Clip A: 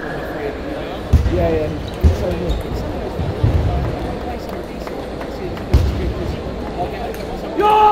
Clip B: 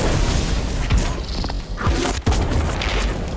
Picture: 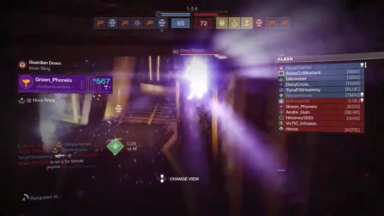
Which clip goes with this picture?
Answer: B